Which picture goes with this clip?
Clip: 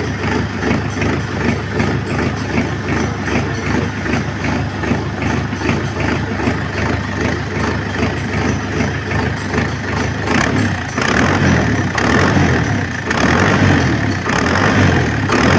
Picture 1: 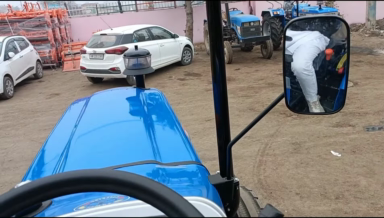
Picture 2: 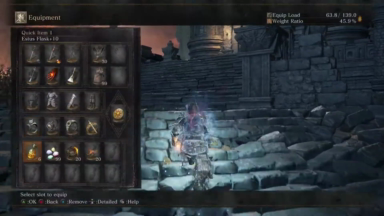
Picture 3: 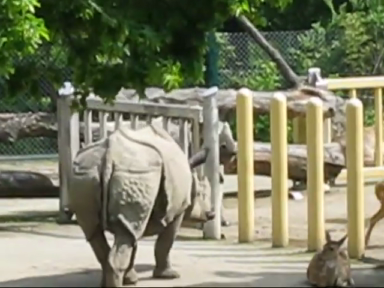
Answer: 1